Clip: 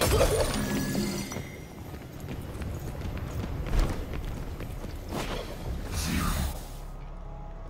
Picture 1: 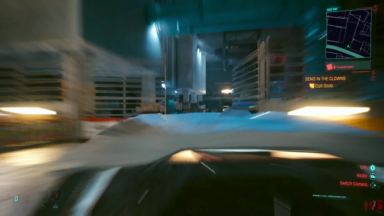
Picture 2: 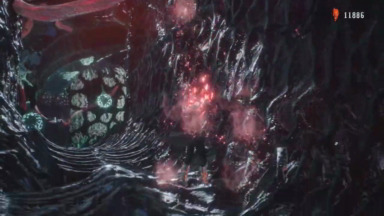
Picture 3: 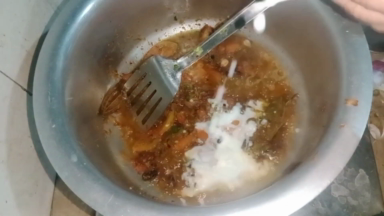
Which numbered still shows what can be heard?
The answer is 2